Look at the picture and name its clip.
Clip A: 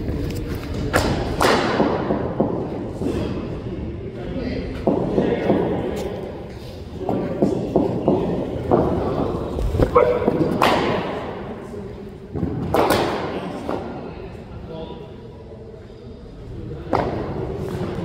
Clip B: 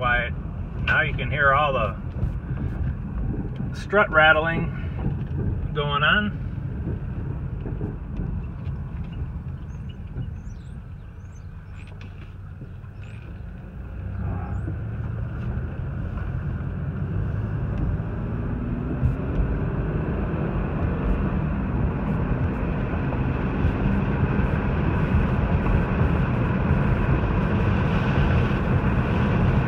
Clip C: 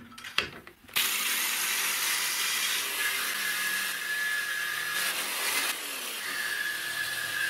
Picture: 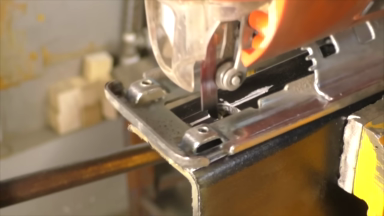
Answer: C